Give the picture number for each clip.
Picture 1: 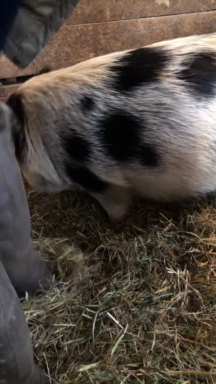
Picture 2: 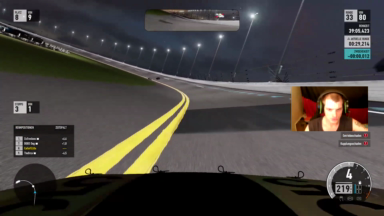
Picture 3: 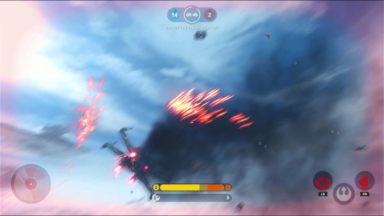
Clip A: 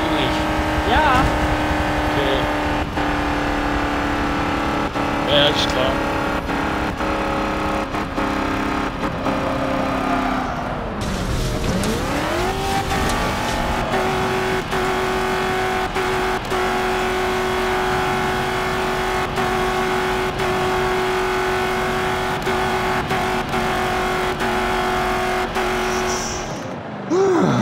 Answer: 2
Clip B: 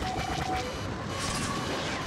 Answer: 3